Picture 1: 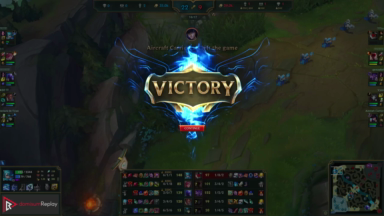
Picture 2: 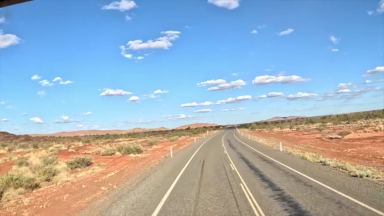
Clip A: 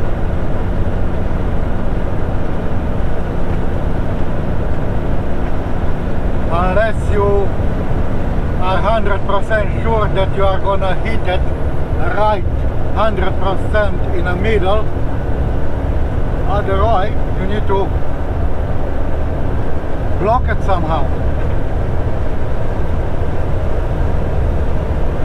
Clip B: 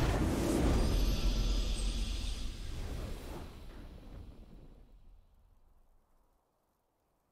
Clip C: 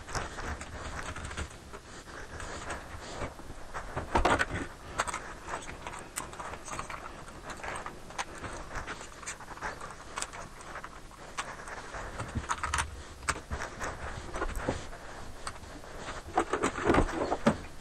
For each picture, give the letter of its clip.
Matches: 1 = B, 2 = A